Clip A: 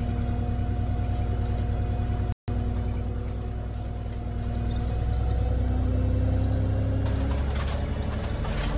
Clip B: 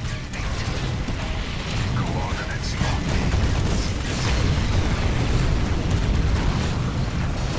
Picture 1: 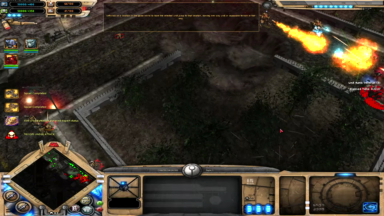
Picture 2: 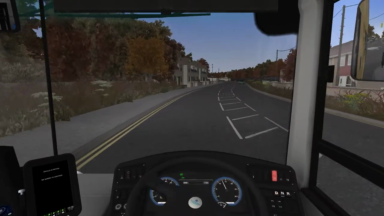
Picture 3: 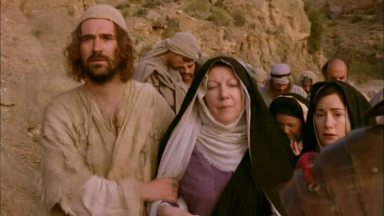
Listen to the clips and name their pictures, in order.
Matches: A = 2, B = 1